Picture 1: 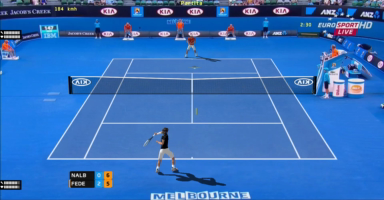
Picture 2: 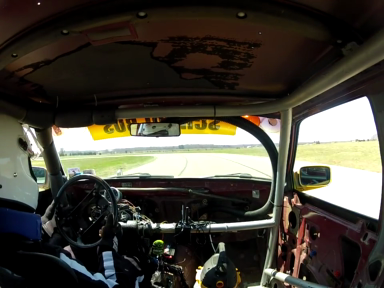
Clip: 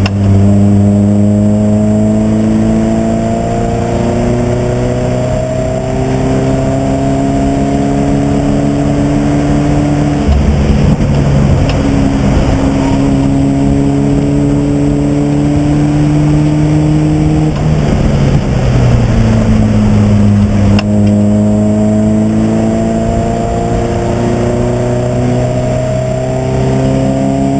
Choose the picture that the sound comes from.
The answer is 2